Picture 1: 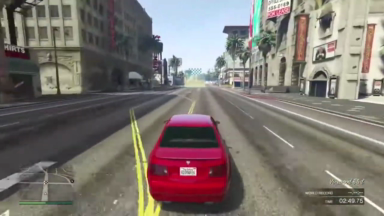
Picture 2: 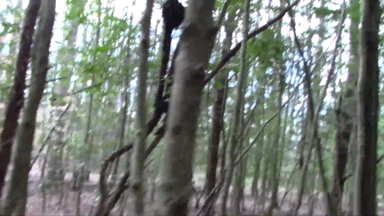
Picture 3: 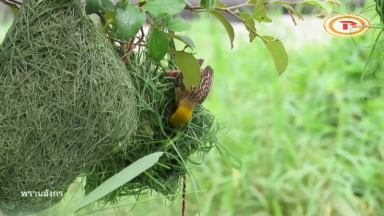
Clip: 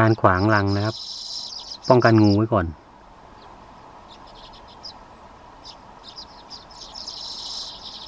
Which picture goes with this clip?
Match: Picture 3